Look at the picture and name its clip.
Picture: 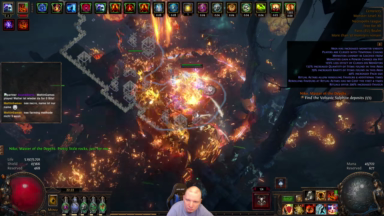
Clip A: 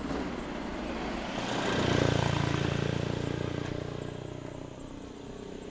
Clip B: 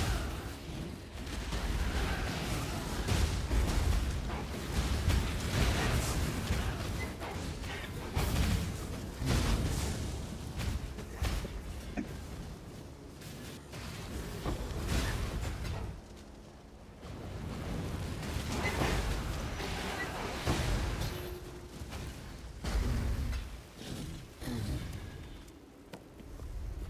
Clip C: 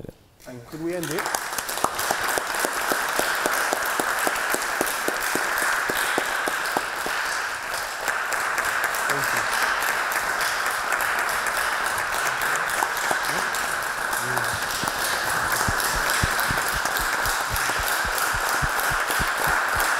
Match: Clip B